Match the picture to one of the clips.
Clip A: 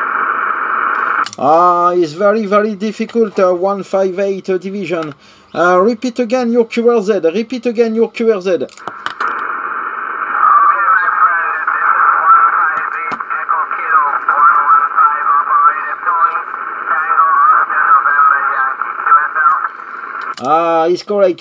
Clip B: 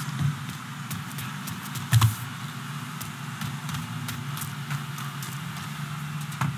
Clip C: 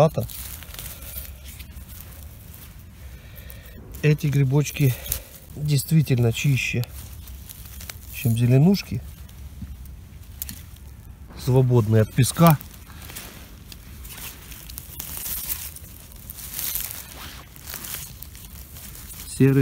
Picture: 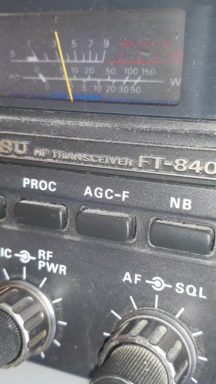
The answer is A